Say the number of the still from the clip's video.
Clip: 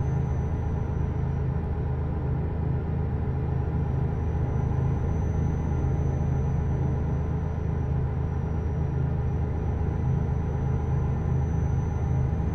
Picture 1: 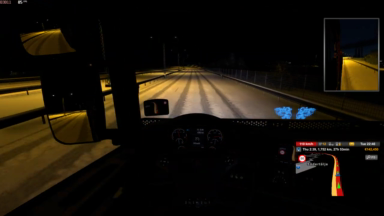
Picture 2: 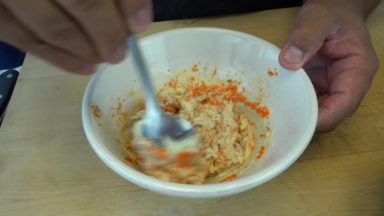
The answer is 1